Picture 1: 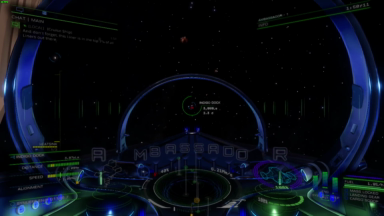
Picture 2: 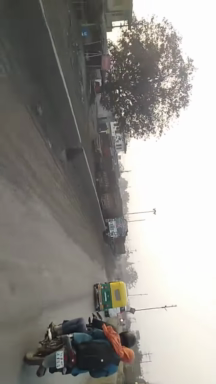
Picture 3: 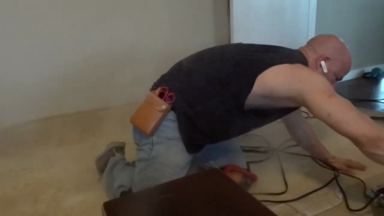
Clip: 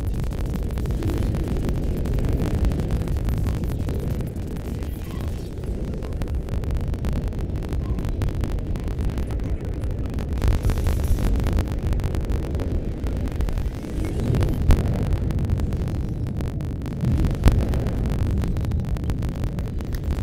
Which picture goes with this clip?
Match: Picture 1